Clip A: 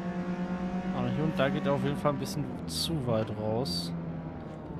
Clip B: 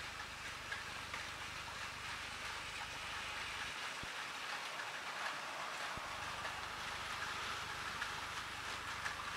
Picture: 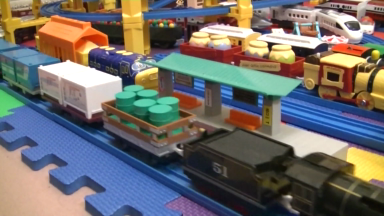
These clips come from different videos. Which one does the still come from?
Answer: B